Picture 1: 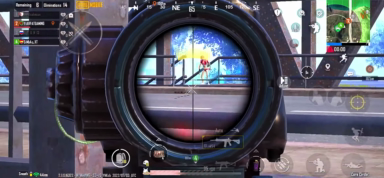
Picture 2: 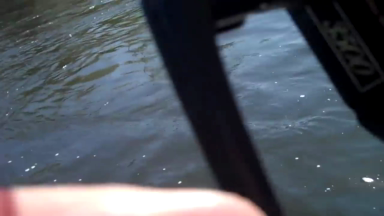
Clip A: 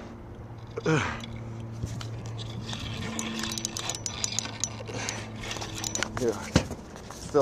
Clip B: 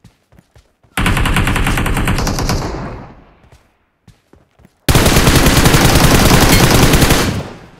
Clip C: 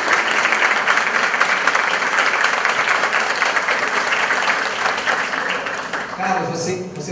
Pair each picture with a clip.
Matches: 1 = B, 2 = A